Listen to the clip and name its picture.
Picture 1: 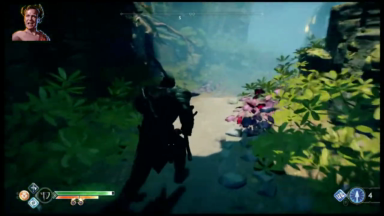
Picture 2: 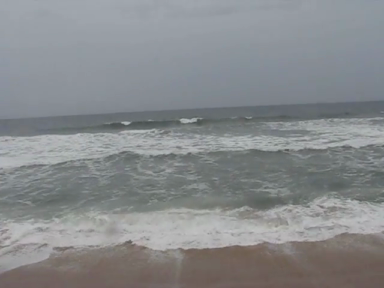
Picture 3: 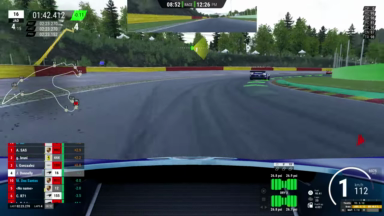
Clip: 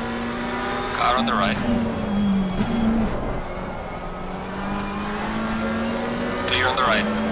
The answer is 3